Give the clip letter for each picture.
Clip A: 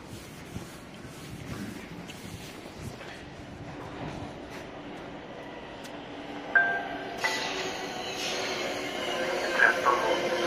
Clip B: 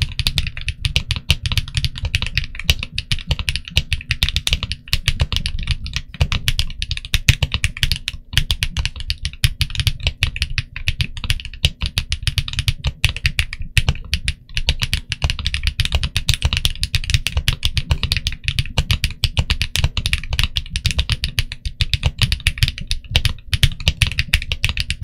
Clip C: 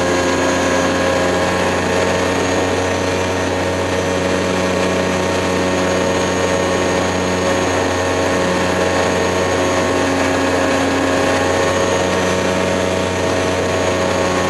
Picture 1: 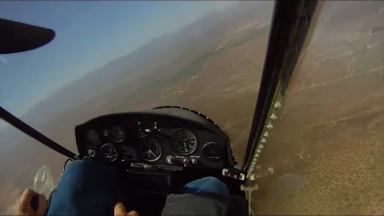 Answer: C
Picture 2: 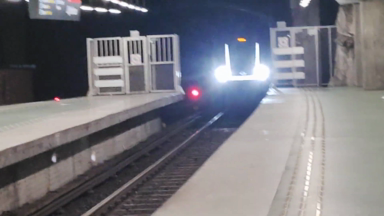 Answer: A